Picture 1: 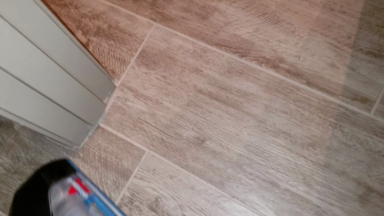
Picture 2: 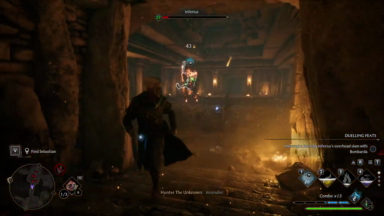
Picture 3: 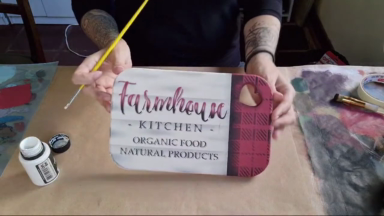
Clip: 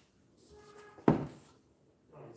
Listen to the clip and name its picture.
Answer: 3